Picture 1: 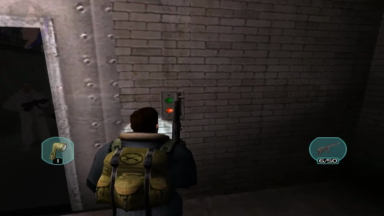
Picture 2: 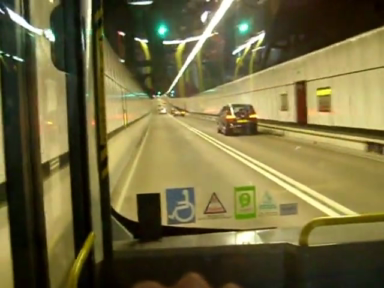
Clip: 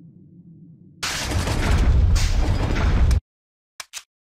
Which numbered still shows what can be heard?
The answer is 1